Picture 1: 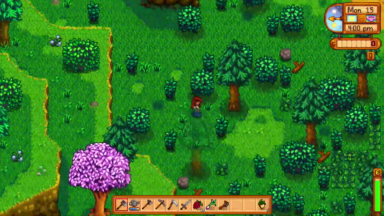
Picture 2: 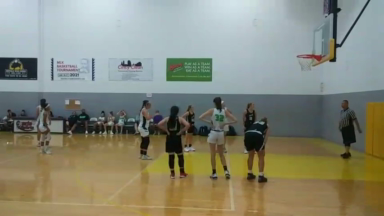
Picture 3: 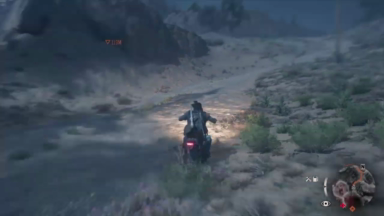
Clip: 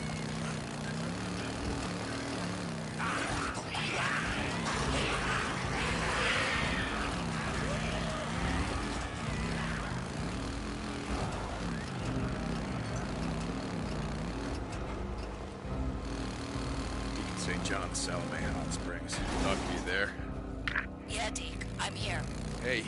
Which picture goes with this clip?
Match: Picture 3